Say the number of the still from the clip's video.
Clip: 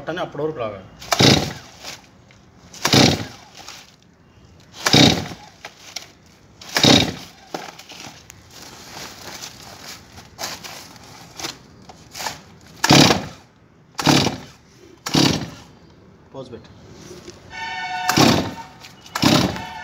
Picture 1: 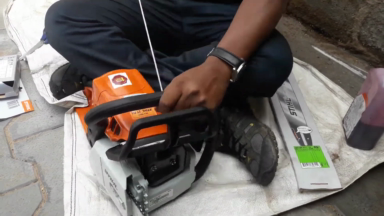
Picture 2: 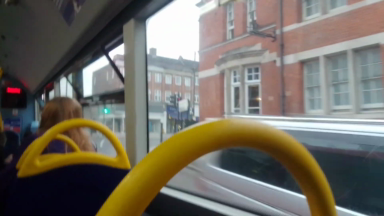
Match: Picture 1